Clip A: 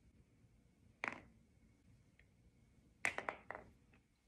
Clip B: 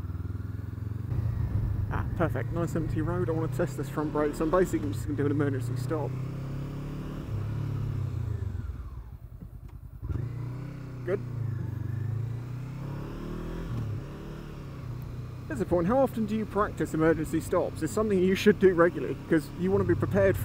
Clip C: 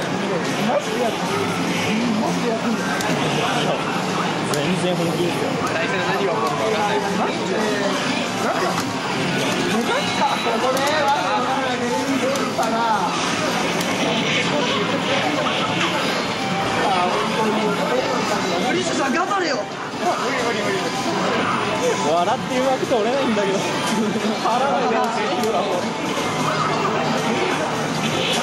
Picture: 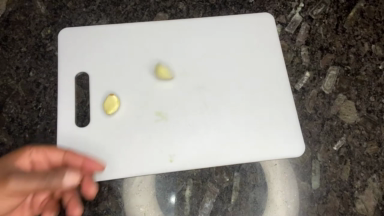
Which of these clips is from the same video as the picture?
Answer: A